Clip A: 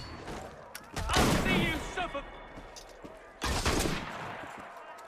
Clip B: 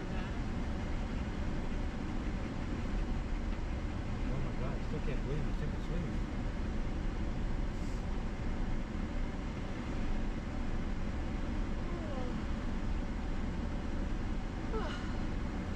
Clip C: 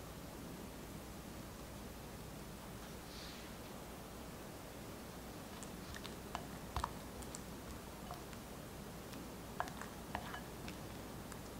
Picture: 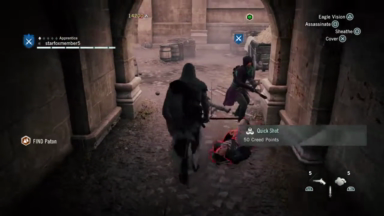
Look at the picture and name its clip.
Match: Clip A